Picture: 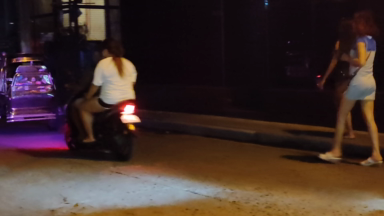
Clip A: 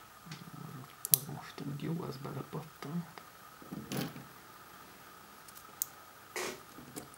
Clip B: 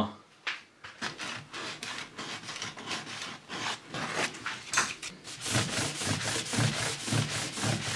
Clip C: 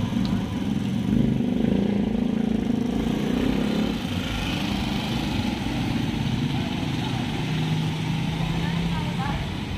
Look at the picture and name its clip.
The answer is C